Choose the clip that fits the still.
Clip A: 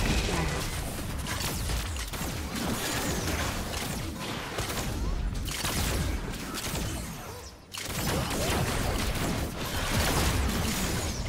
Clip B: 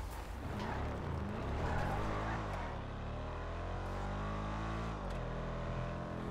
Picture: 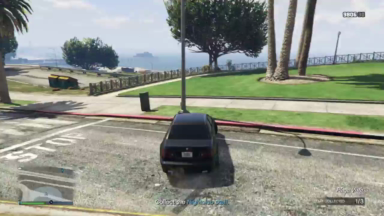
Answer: B